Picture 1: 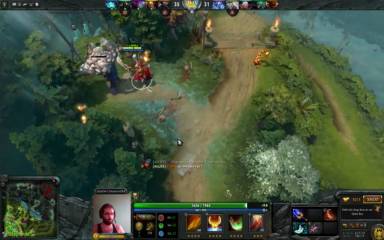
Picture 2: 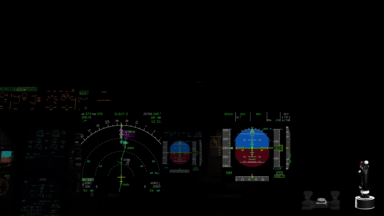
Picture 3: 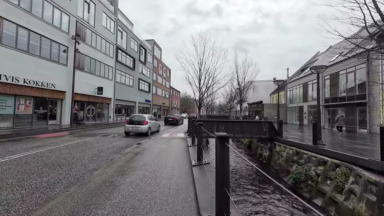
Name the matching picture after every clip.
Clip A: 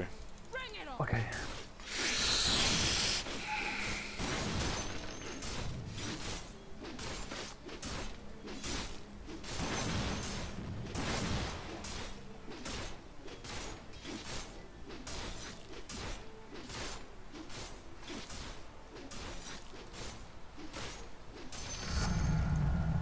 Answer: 1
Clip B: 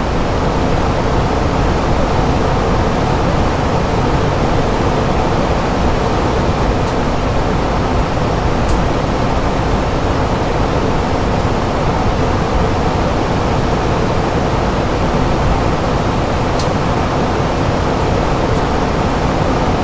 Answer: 2